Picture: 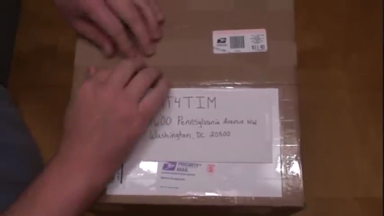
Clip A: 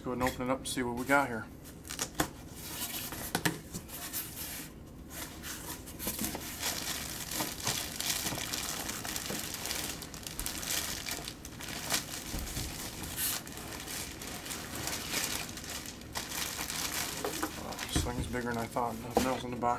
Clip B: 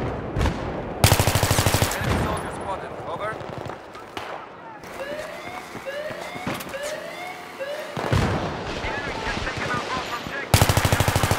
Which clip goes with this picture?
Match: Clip A